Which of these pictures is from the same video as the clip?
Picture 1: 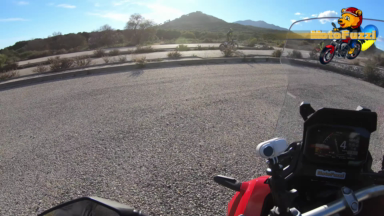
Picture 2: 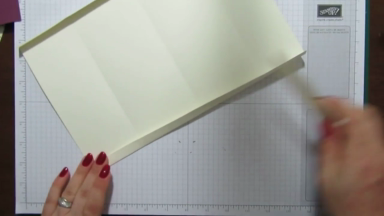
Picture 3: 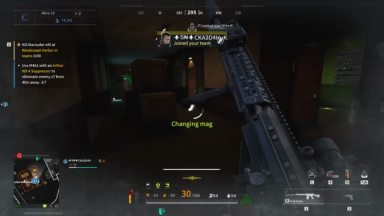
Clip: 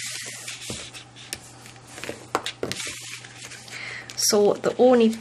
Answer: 2